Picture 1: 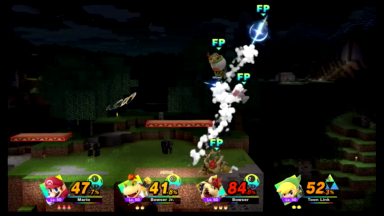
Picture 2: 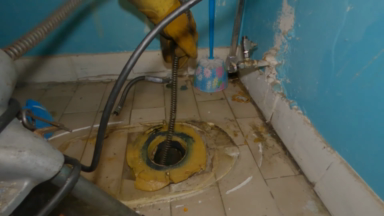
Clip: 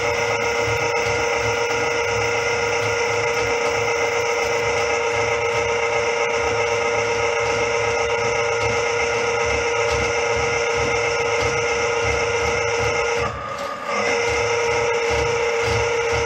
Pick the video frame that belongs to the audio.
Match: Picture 2